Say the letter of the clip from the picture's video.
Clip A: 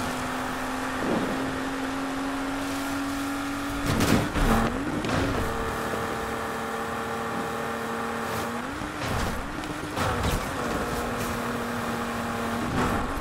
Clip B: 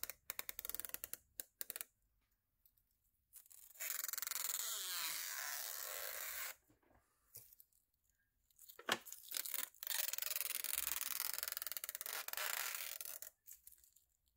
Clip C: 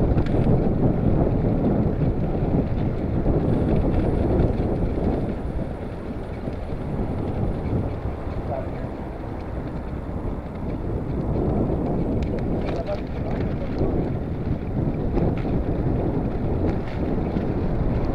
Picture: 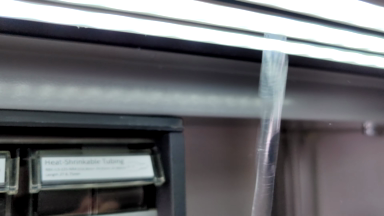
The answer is B